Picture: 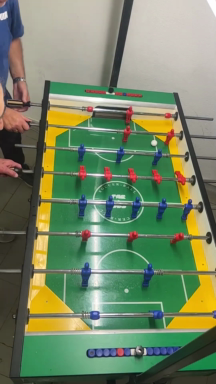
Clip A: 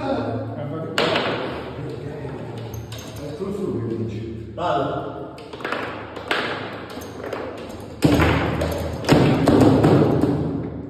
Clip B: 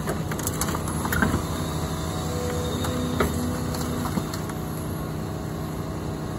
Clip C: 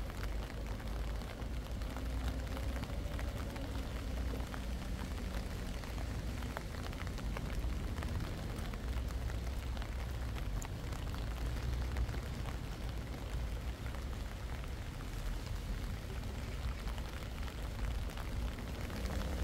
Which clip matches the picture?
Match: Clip A